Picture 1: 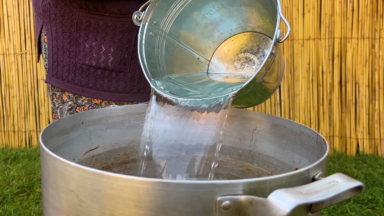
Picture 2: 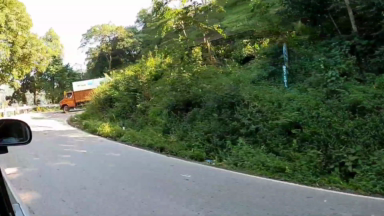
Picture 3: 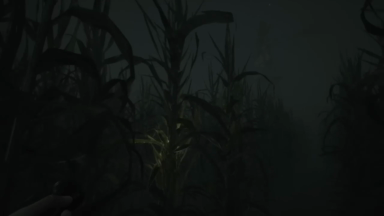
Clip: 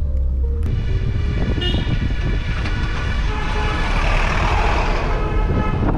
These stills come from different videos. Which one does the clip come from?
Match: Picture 2